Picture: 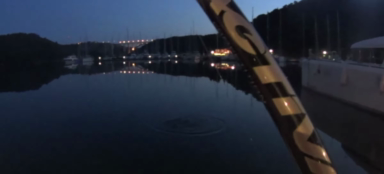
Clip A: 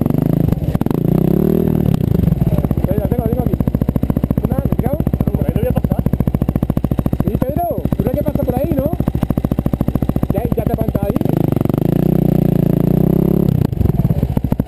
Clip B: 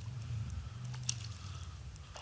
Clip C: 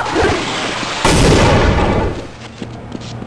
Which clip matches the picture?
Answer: B